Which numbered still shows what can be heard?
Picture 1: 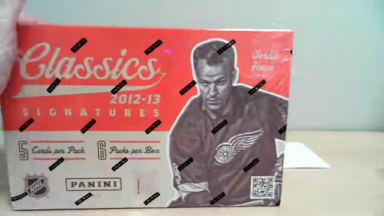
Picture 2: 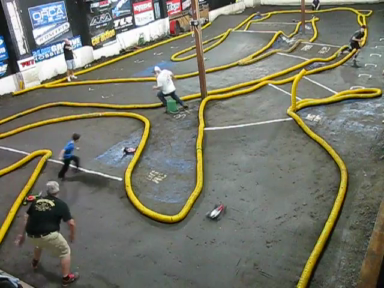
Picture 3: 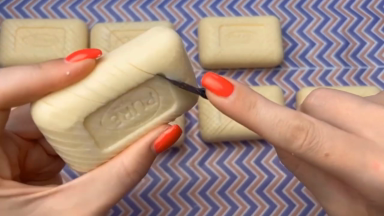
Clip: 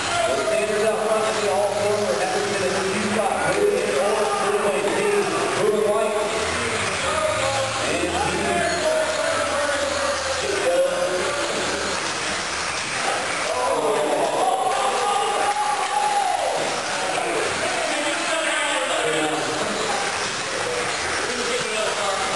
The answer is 2